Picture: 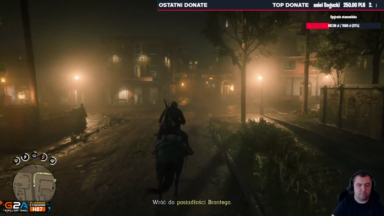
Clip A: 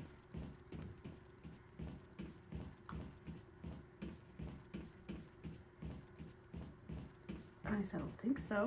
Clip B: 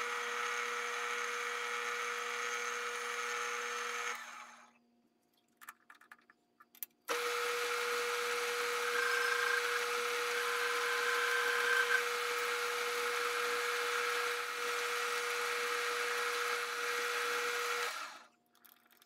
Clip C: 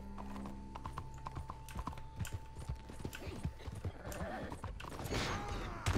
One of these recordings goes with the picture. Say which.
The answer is C